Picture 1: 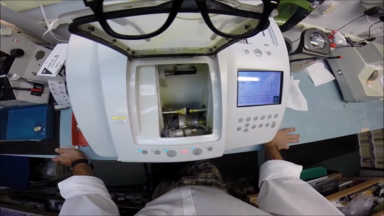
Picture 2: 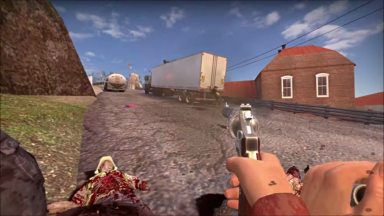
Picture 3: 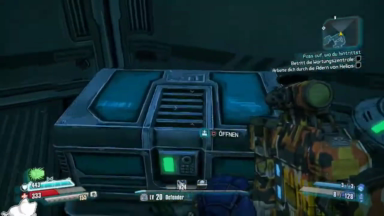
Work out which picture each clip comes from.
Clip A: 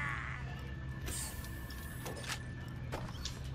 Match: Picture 3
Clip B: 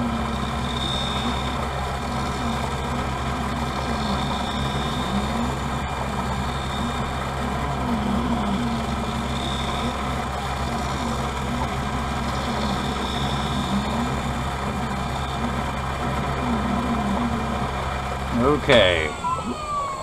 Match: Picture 1